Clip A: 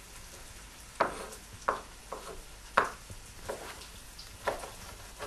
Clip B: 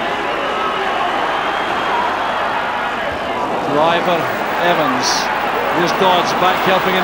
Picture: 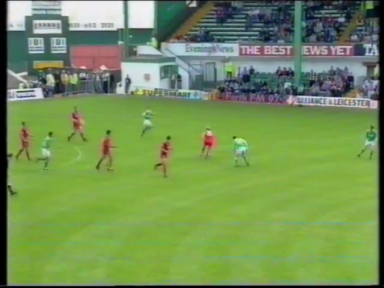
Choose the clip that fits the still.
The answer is B